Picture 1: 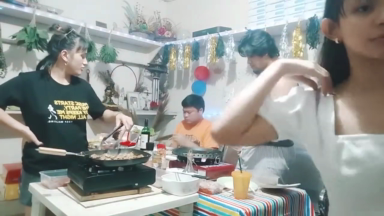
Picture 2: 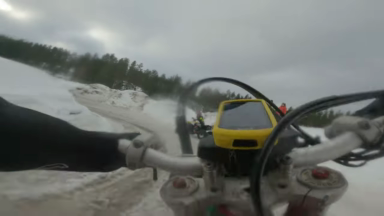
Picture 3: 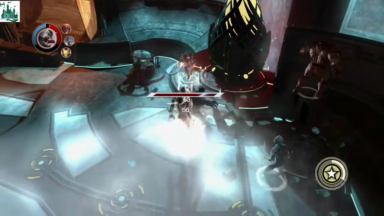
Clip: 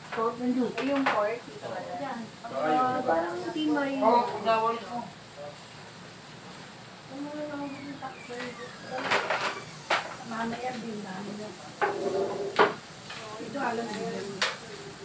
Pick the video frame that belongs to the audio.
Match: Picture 1